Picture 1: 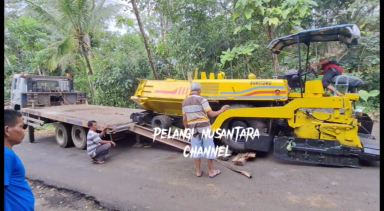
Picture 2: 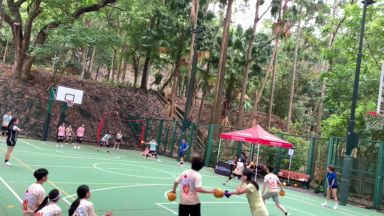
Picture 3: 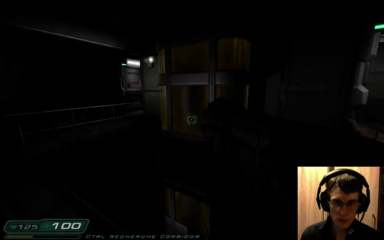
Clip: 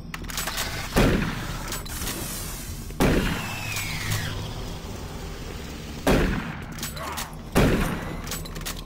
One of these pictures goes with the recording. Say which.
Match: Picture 3